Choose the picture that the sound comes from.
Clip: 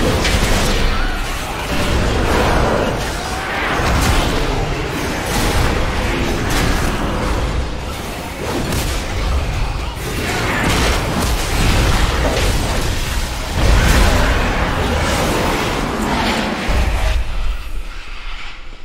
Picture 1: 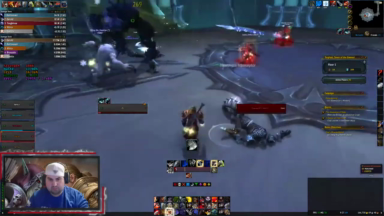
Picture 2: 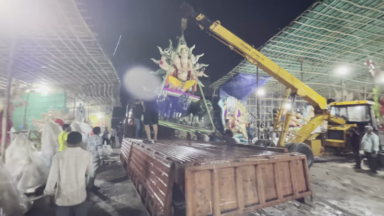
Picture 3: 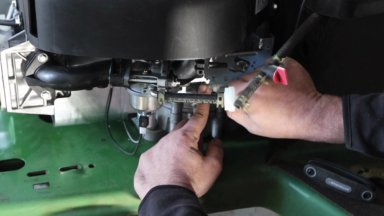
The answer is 1